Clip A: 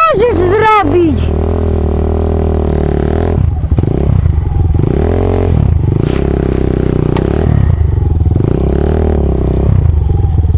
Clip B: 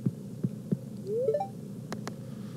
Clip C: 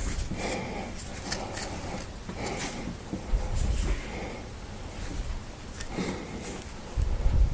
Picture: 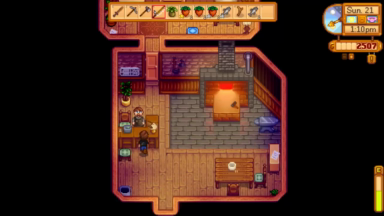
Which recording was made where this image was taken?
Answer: B